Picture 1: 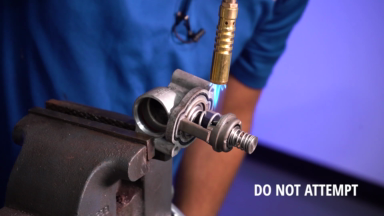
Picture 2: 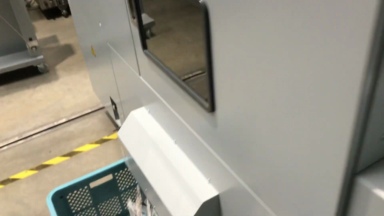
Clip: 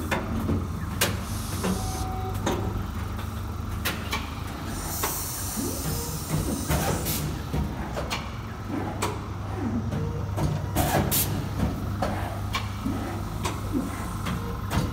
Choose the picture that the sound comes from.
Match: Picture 2